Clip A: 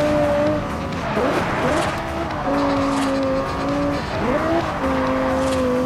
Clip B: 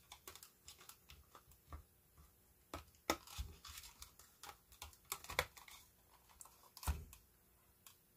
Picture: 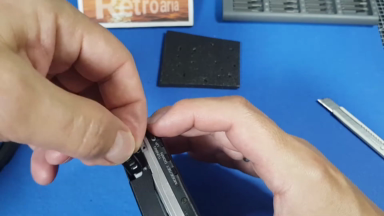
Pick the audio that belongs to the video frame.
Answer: B